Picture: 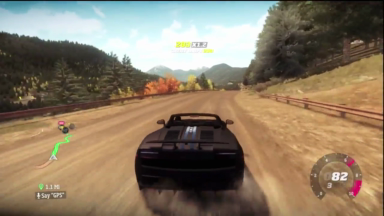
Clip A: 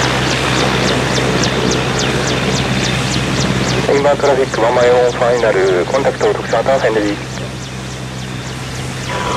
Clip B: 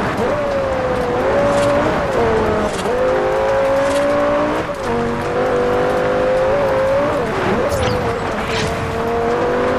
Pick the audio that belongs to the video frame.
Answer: B